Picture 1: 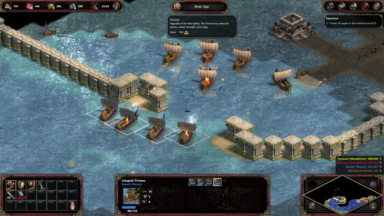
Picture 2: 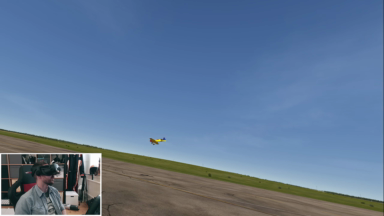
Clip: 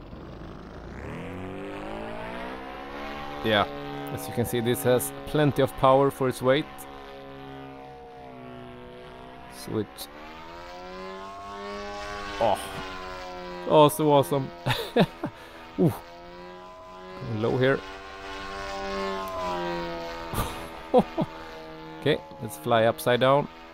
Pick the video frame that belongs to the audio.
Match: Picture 2